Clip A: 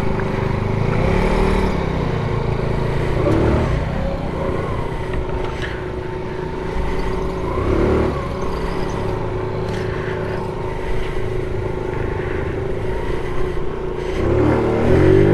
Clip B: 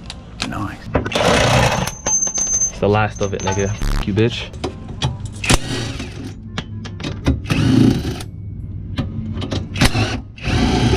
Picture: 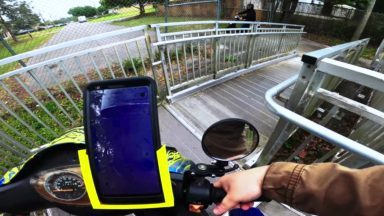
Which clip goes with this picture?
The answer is A